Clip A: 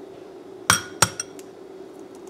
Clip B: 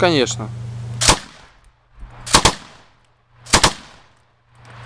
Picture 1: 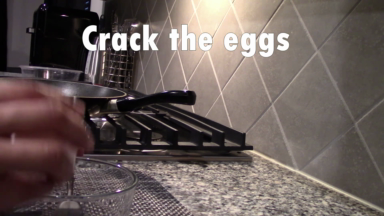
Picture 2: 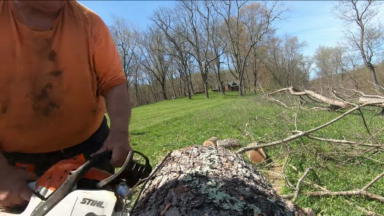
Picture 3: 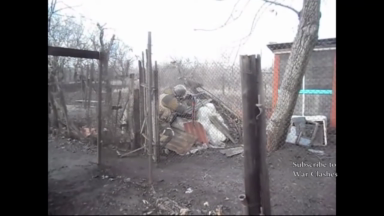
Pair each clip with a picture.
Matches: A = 1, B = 3